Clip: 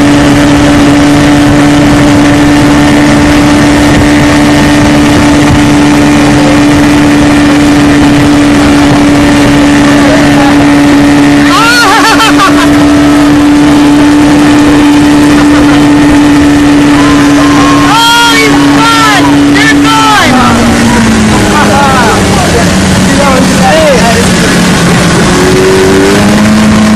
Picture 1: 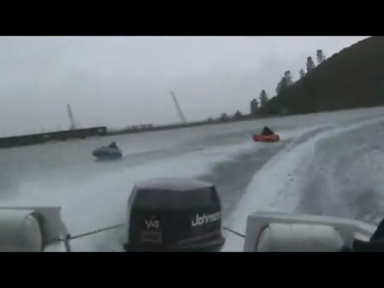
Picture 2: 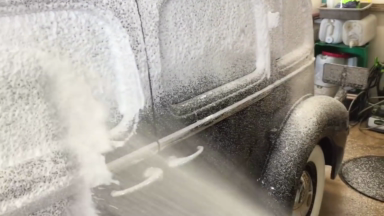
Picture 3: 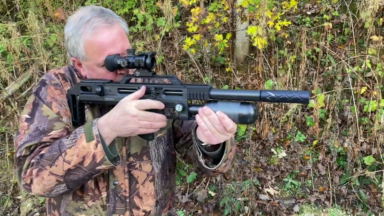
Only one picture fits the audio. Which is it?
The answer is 1